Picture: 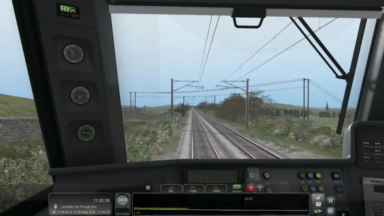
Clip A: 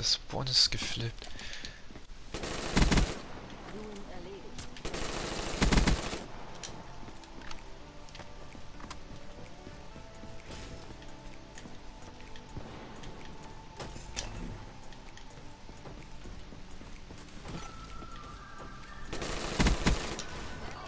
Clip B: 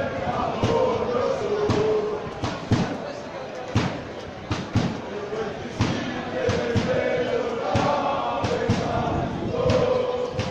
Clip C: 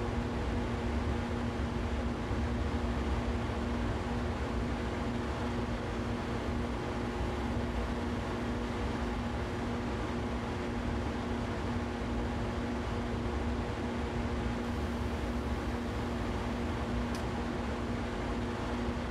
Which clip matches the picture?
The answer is C